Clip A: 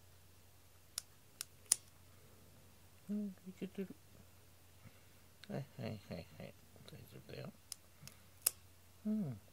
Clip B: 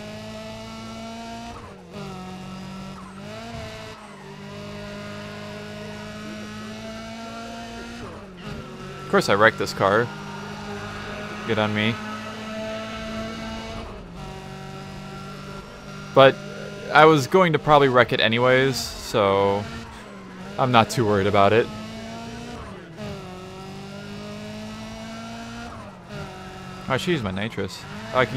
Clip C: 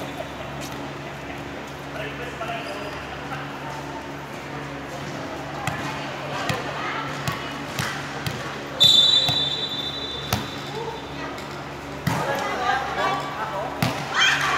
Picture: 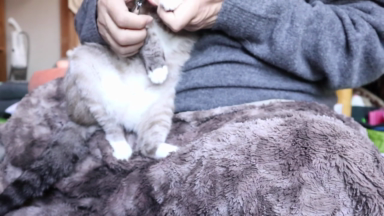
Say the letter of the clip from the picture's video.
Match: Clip A